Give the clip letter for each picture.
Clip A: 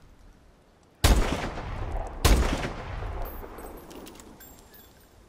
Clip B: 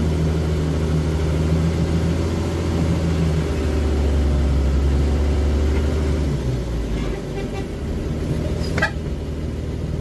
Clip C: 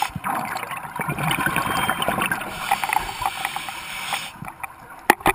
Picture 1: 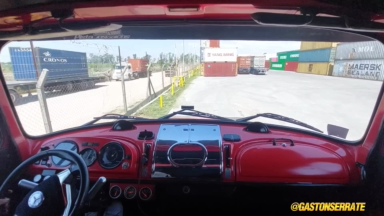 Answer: B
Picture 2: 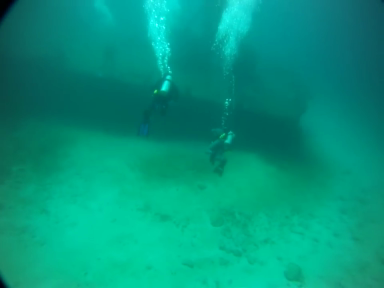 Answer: C